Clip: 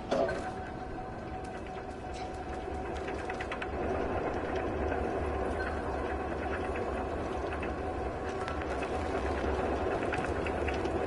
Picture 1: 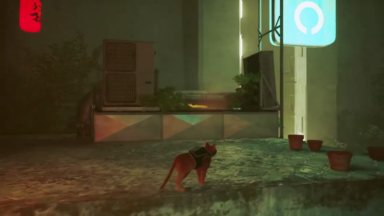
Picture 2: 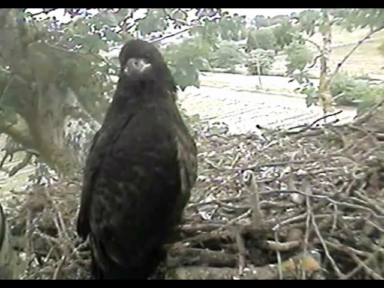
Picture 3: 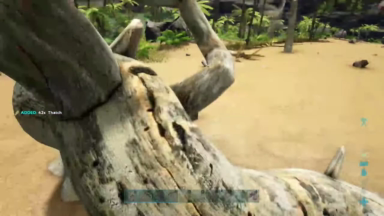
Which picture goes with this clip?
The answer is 1